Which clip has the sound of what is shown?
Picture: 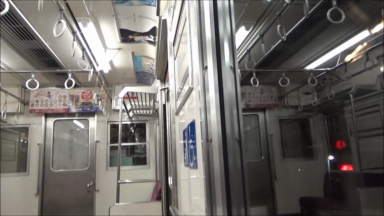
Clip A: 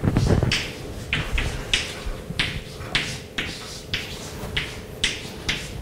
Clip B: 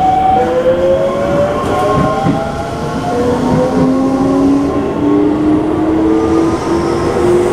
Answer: B